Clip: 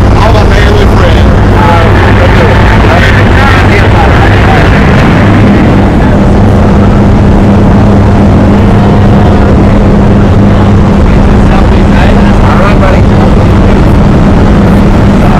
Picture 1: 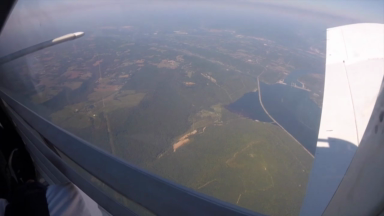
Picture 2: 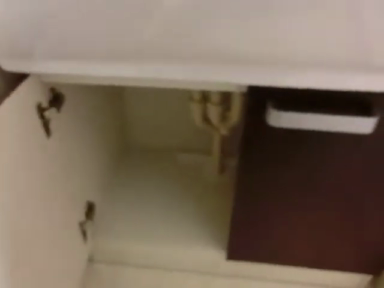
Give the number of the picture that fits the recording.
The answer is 1